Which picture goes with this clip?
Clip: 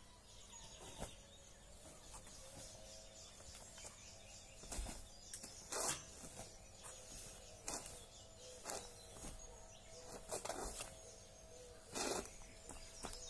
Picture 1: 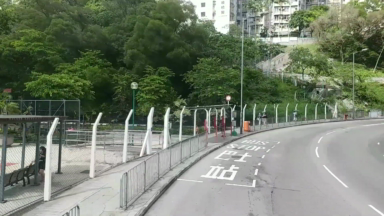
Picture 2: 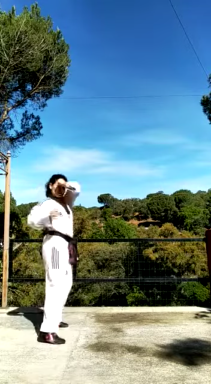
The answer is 2